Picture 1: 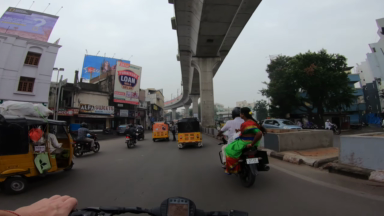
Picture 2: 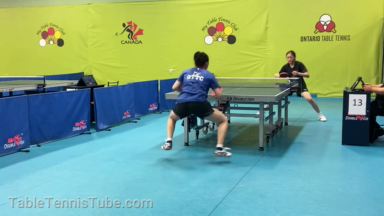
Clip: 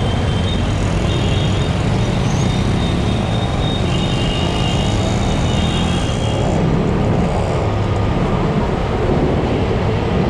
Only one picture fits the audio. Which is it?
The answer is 1